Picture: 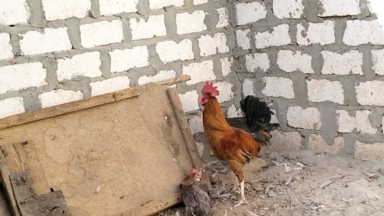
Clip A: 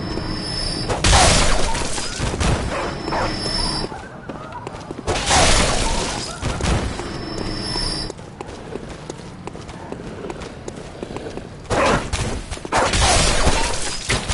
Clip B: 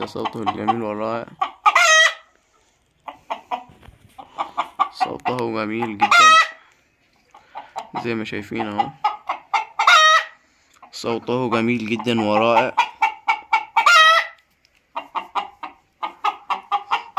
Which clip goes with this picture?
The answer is B